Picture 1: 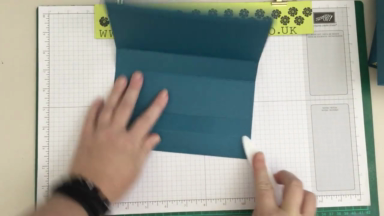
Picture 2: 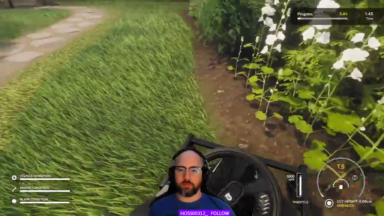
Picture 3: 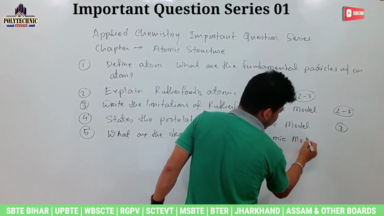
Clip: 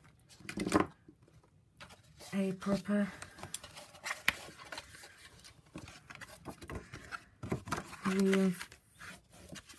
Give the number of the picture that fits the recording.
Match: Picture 1